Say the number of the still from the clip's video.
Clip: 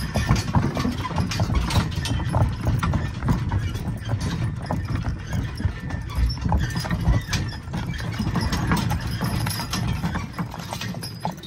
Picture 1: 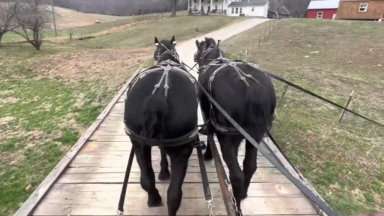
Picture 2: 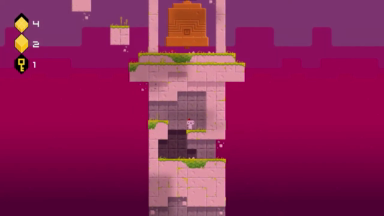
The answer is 1